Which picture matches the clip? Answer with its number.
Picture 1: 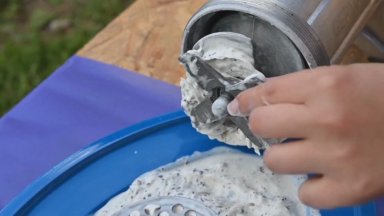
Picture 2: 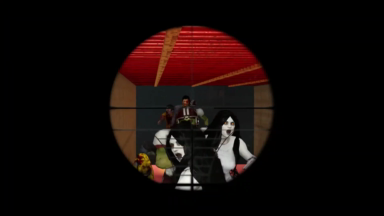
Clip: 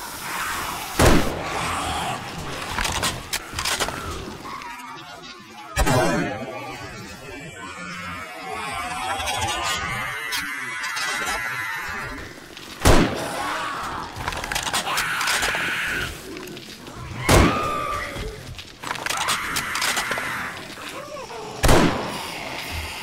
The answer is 2